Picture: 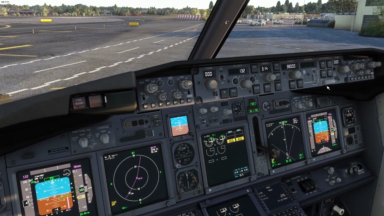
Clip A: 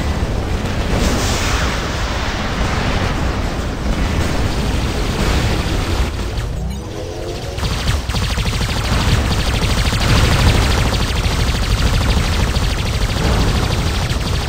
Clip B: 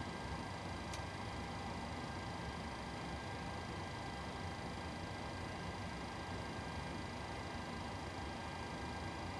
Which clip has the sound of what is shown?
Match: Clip B